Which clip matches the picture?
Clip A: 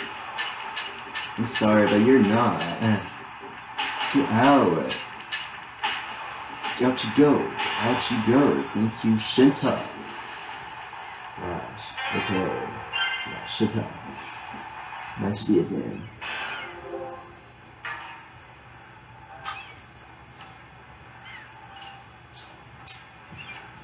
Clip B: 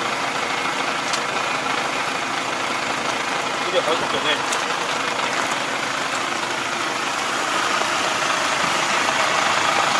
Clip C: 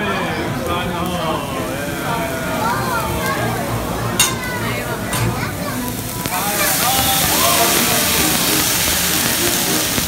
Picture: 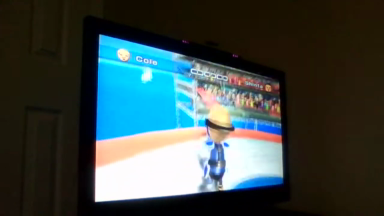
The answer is A